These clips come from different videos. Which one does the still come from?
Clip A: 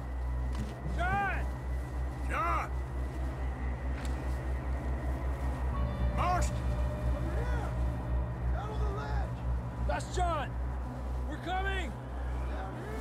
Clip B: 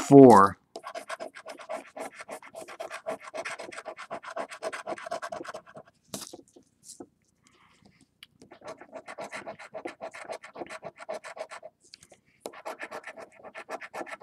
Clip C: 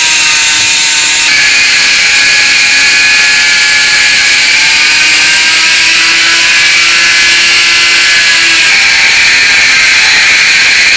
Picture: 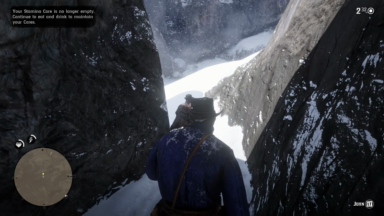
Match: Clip A